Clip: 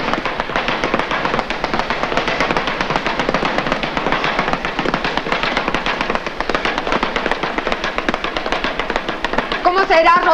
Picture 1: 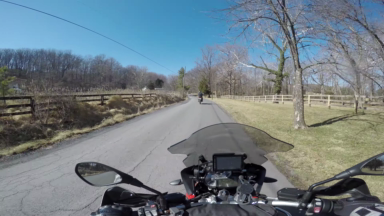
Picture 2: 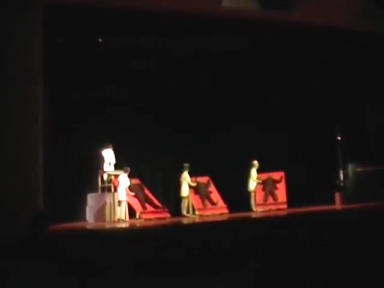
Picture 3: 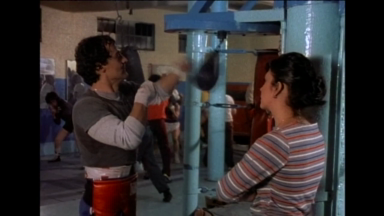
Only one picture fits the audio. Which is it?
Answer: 3